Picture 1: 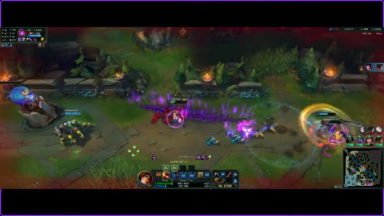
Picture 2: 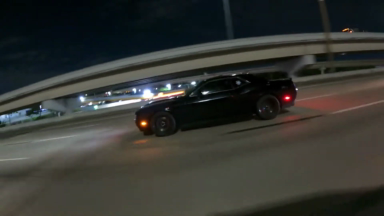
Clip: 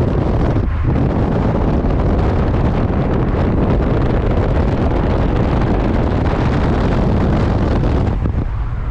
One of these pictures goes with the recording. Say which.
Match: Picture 2